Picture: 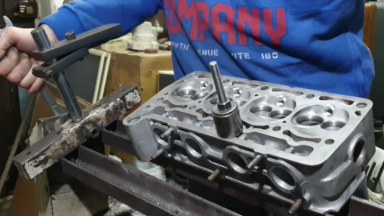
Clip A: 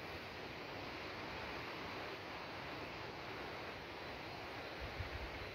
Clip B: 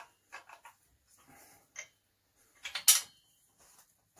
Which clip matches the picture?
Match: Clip B